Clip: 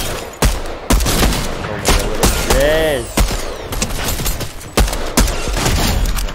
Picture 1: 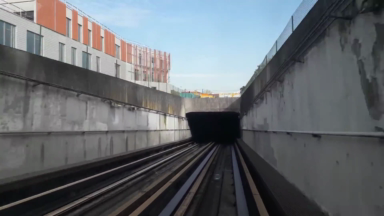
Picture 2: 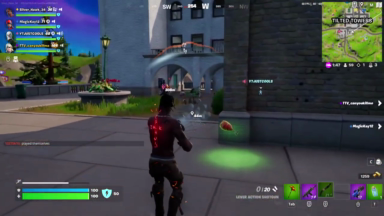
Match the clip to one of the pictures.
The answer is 2